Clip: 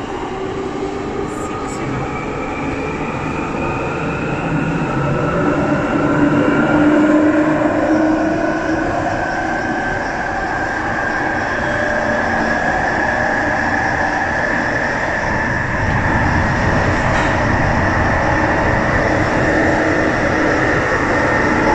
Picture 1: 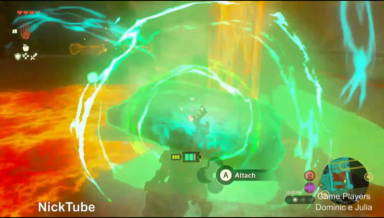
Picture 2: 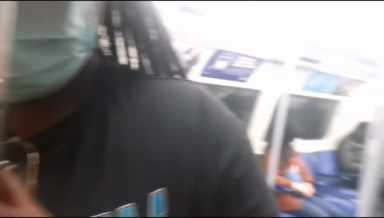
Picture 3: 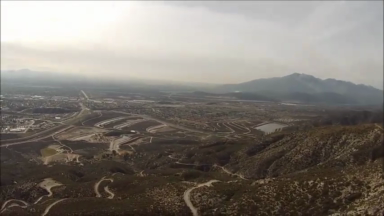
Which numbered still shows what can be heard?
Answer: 2